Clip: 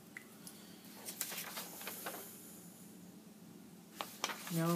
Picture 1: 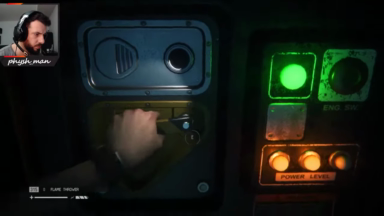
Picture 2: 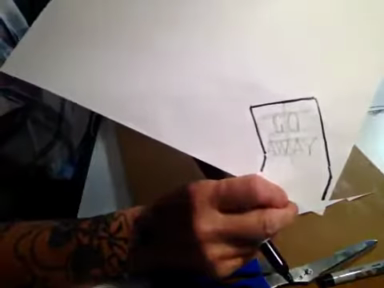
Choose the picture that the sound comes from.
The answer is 2